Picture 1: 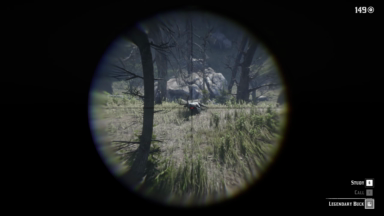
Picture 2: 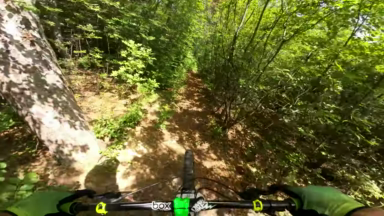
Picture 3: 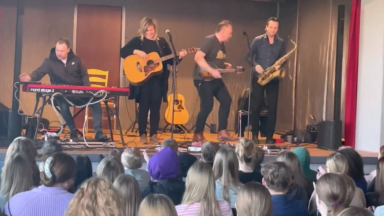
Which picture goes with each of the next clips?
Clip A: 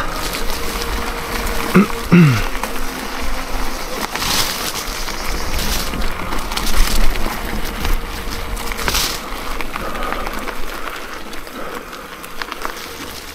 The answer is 2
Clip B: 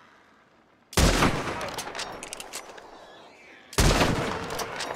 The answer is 1